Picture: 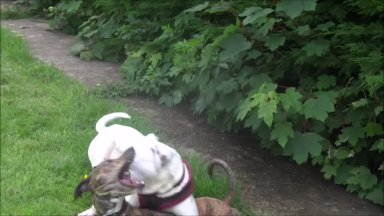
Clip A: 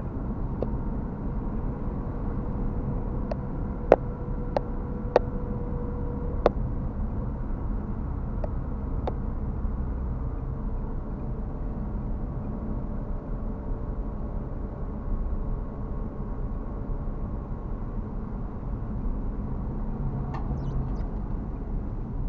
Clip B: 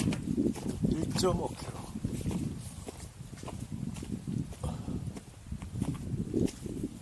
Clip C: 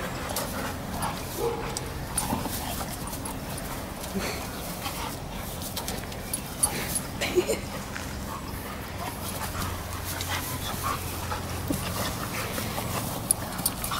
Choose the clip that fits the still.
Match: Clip C